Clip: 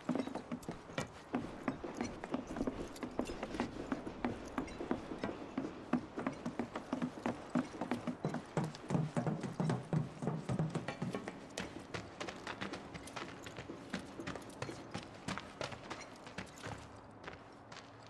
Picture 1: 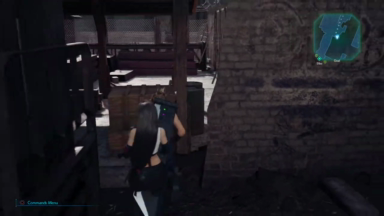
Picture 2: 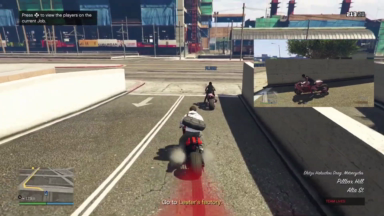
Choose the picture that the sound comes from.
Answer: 1